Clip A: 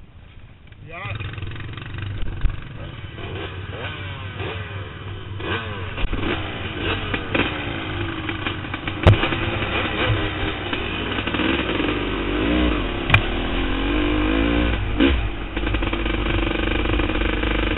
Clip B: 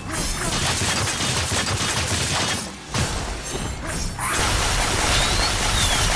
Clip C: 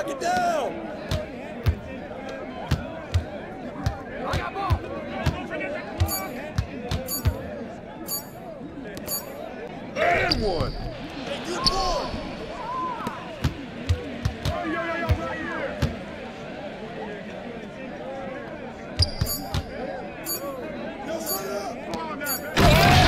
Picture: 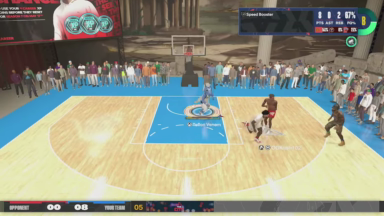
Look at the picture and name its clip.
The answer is C